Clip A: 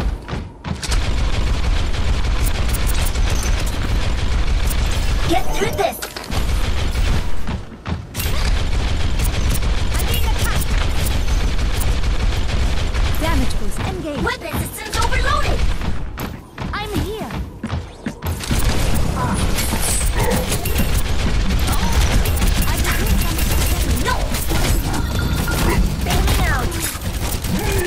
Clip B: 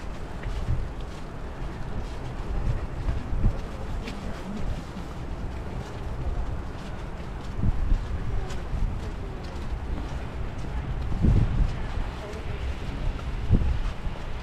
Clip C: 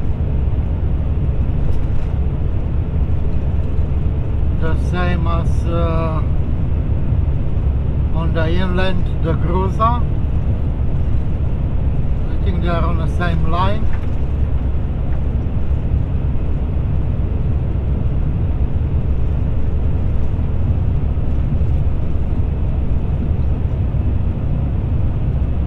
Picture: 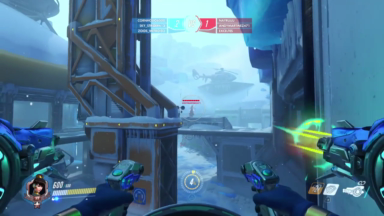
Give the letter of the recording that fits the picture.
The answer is A